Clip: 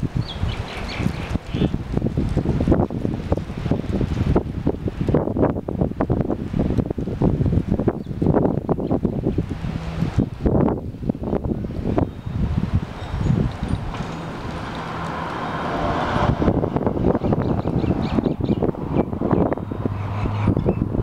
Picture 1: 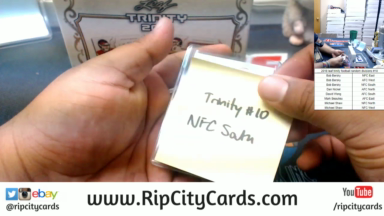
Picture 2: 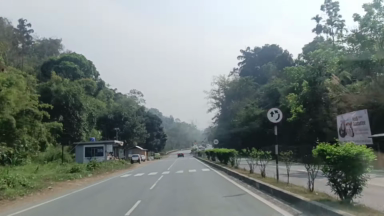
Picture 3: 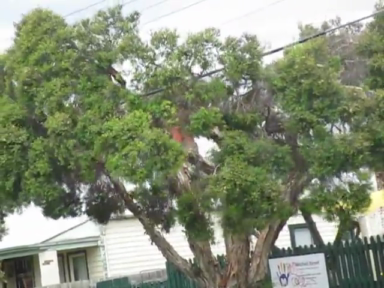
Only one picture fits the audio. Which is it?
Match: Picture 3